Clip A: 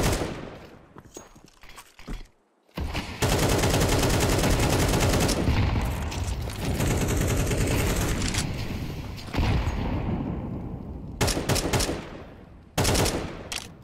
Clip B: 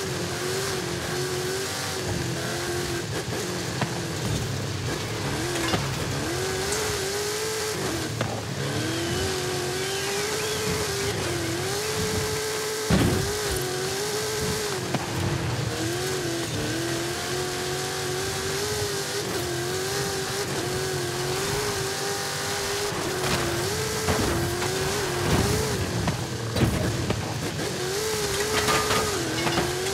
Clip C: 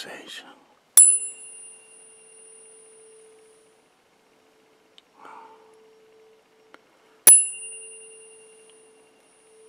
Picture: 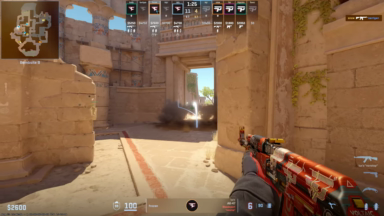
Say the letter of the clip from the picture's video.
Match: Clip A